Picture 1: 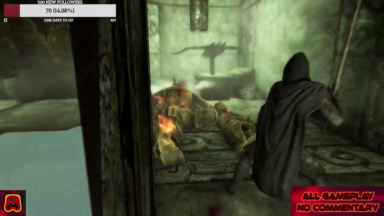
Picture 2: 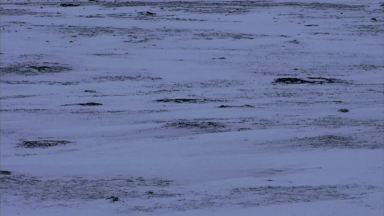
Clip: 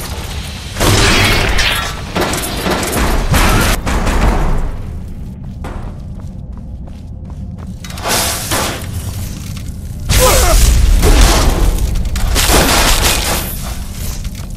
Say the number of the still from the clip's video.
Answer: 1